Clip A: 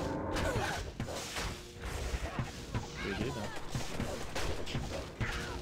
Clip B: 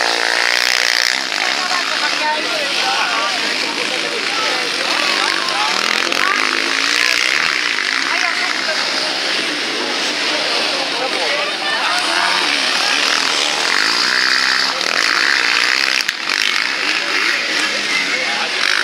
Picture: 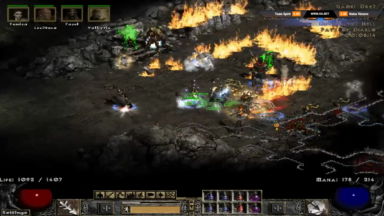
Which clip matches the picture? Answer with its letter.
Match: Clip A